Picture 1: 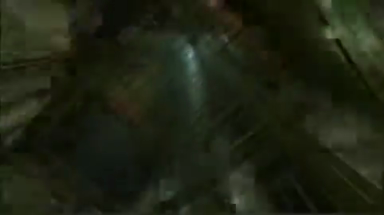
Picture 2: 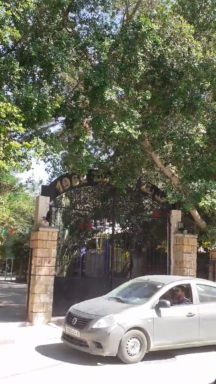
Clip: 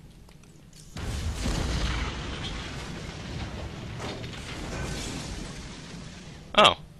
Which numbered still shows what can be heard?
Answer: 1